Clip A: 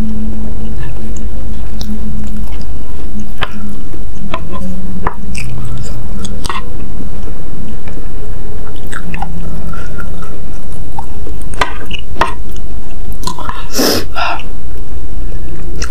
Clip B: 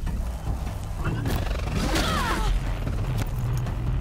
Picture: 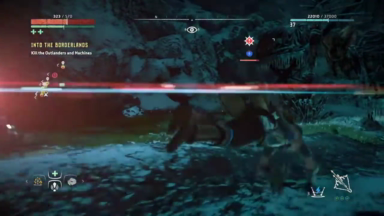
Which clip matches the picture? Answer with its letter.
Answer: B